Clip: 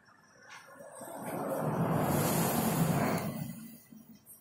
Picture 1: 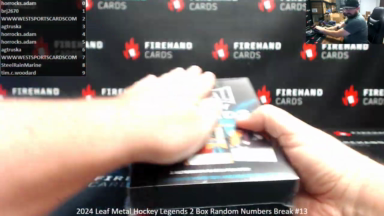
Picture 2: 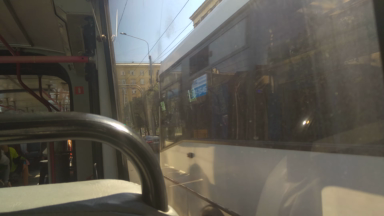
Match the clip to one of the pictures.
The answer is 2